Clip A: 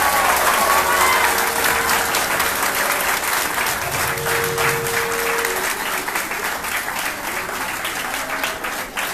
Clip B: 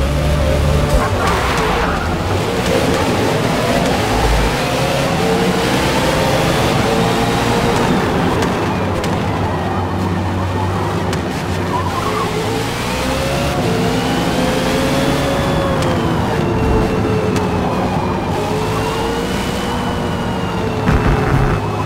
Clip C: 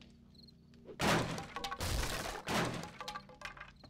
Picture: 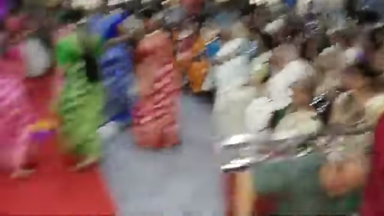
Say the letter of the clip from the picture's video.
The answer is A